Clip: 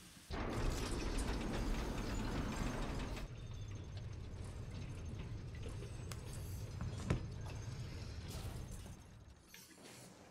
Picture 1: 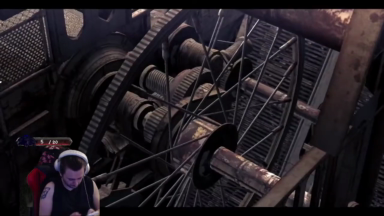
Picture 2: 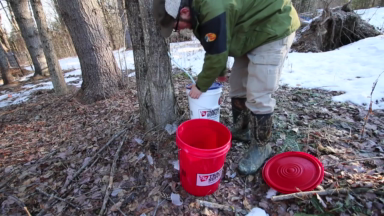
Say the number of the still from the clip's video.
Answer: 1